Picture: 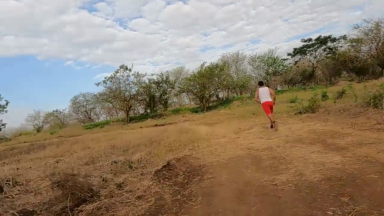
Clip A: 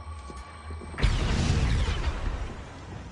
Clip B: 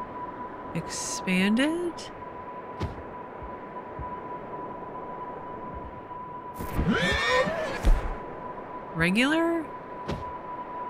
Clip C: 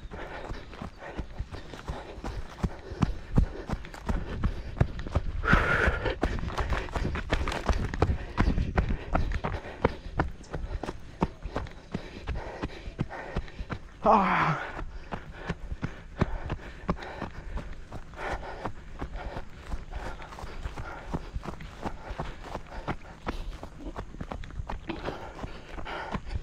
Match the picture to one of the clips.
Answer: C